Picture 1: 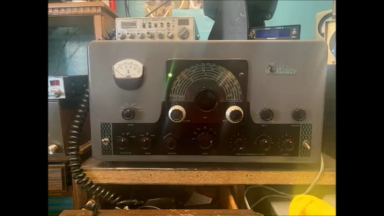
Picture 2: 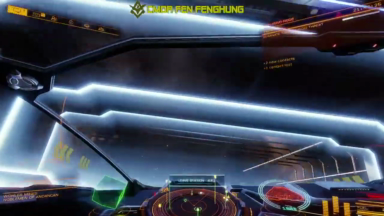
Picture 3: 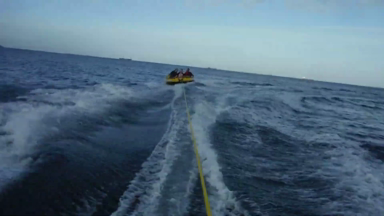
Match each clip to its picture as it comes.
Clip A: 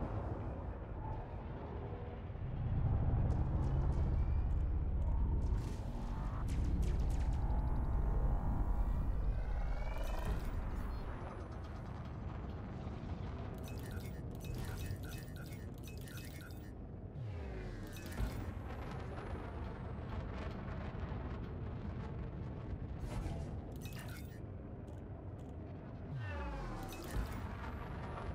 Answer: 2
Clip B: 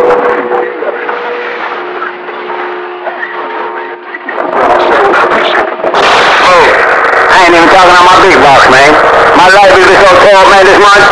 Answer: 1